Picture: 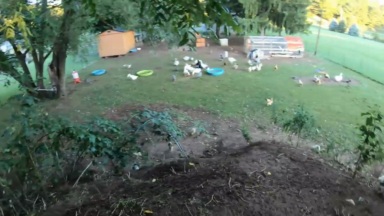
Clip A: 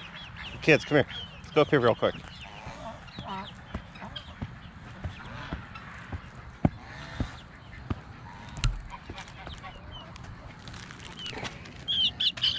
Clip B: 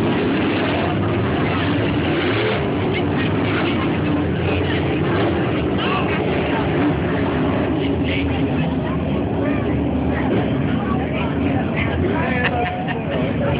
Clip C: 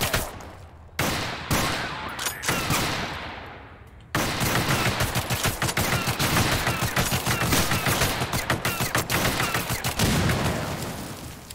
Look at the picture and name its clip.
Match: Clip A